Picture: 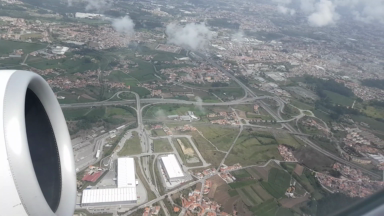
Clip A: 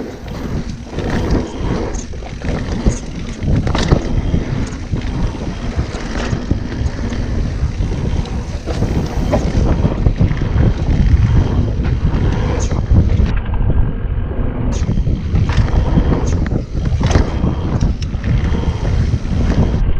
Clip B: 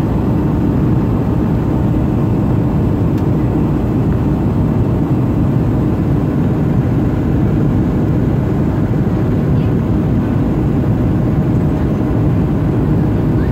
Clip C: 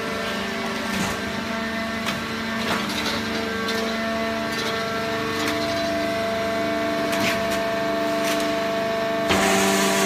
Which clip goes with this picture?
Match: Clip B